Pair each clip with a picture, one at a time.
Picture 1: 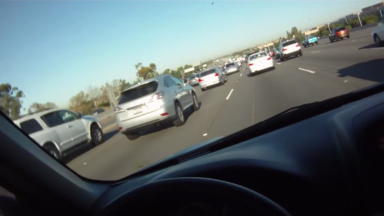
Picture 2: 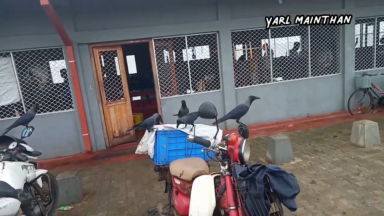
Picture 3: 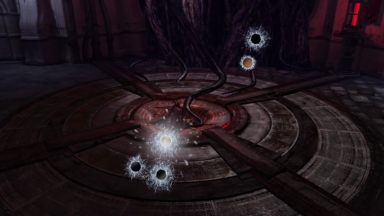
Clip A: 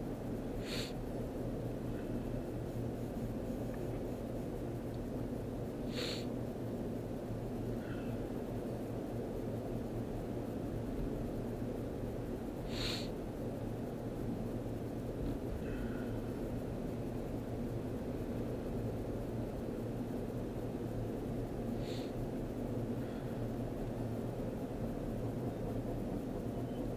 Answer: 1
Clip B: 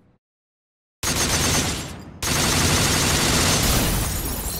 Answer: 3